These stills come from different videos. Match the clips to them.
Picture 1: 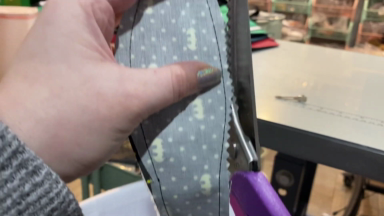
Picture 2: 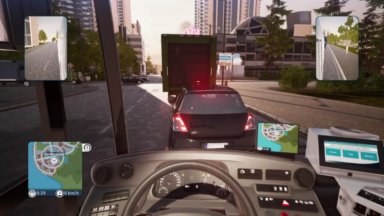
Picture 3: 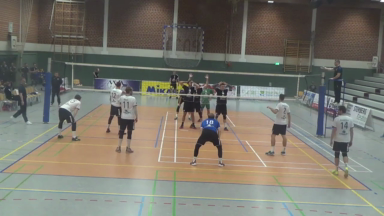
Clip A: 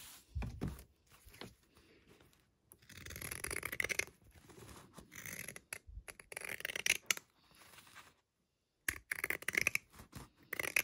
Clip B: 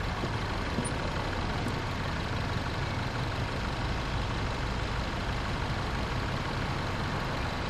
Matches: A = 1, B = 2